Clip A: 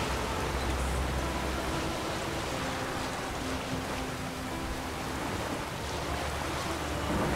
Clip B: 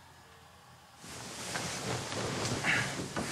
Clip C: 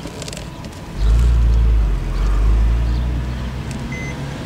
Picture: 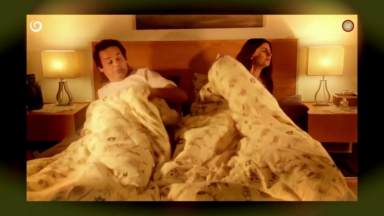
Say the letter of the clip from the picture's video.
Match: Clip B